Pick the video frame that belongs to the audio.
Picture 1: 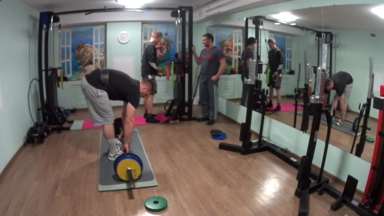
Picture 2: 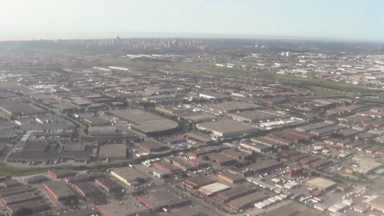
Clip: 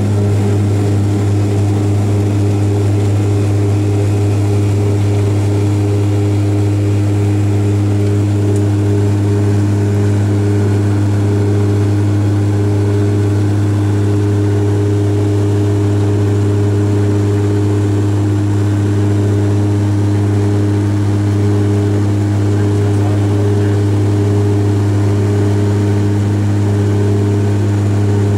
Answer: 2